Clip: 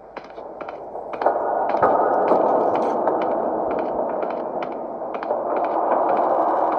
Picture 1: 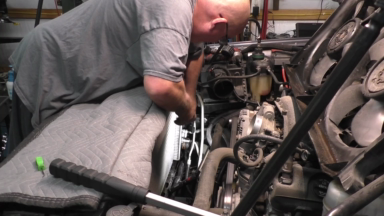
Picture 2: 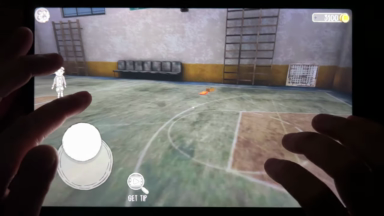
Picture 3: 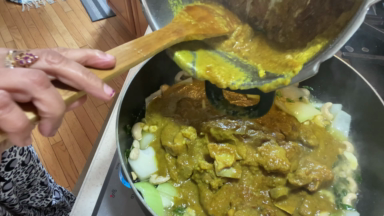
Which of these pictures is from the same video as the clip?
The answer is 2